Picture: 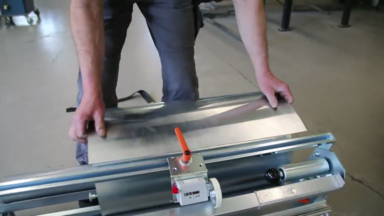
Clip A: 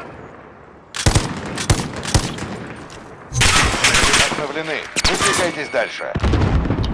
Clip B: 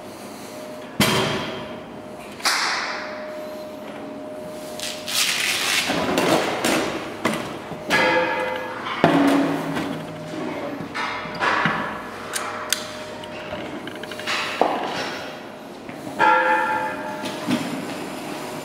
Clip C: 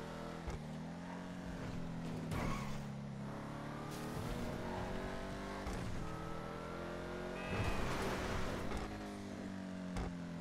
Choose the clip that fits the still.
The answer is B